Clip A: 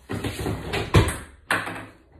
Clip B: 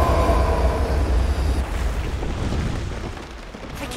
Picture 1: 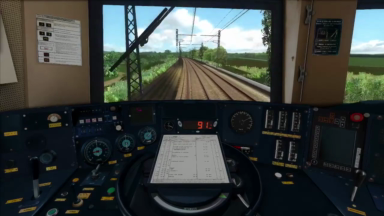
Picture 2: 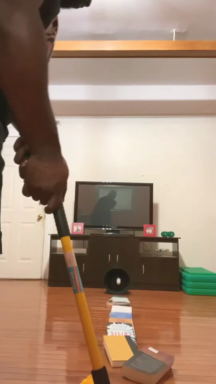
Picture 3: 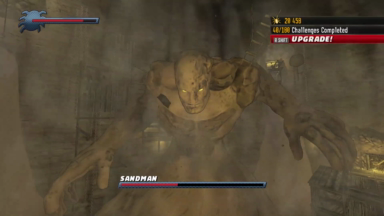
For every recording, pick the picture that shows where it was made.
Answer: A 2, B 3